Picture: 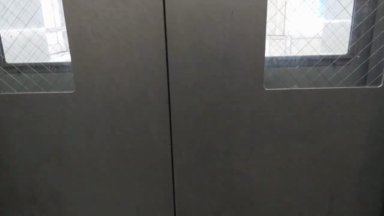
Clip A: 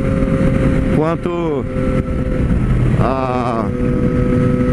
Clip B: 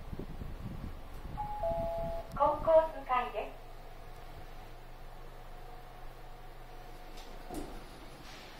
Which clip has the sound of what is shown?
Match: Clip B